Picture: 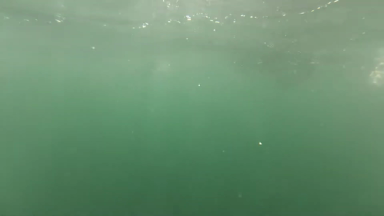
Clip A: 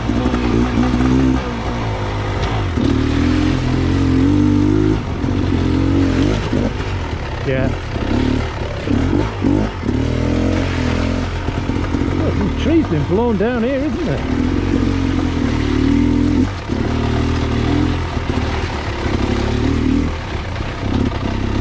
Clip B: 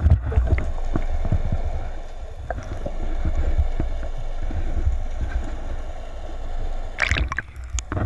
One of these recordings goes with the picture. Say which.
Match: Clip B